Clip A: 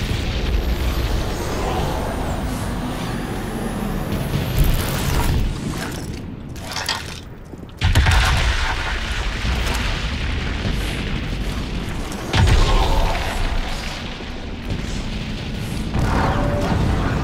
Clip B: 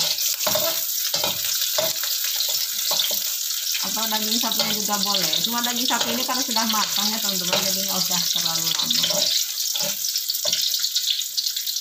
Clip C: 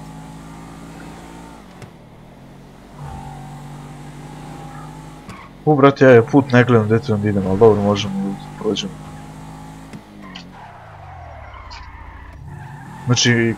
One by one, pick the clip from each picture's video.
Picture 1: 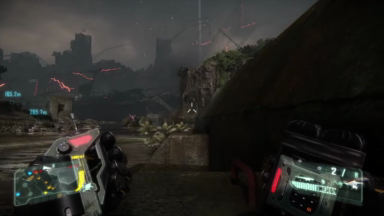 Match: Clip A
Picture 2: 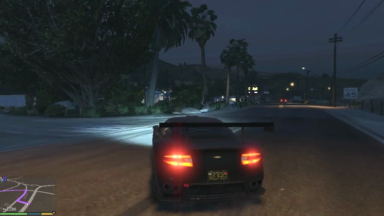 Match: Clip C